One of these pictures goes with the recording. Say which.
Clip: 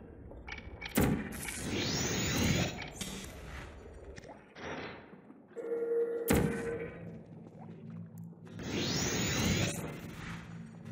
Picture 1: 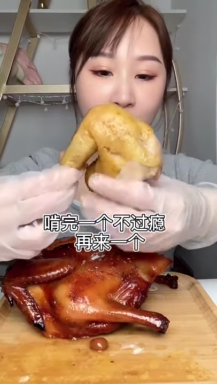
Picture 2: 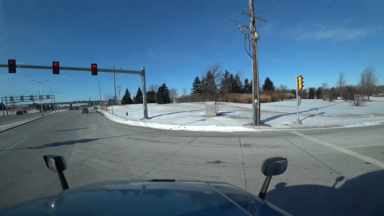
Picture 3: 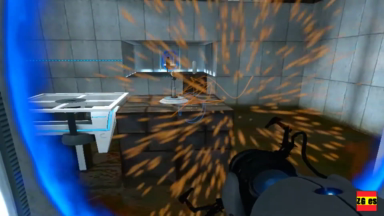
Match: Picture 3